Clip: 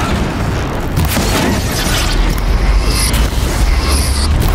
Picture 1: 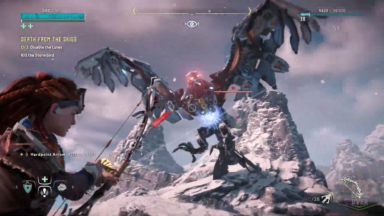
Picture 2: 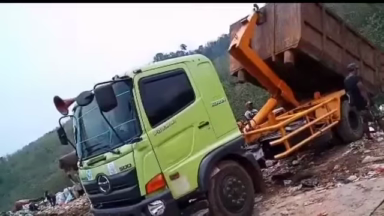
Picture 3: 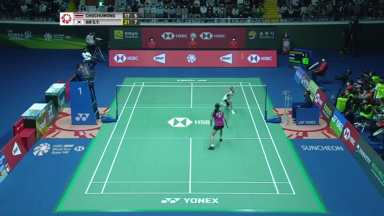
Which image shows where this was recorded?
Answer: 1